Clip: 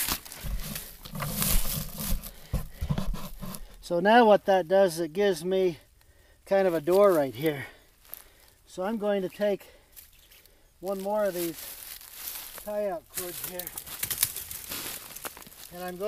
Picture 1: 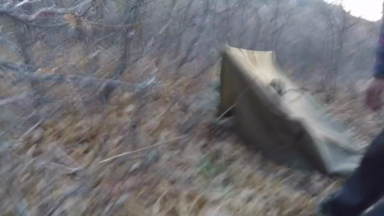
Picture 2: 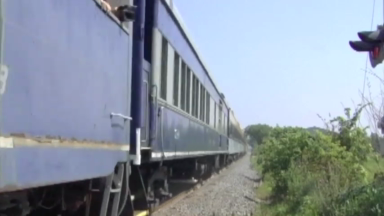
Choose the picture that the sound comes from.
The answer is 1